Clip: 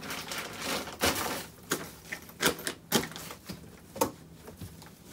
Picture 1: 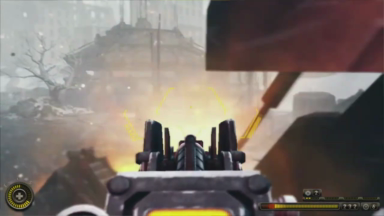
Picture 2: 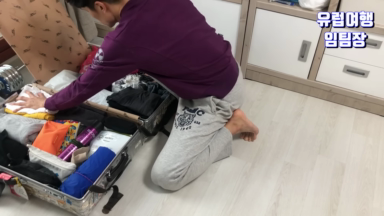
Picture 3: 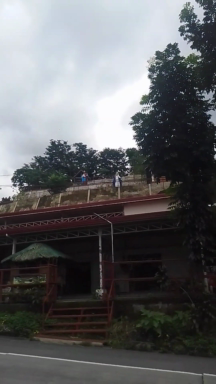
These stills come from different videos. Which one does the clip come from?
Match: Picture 2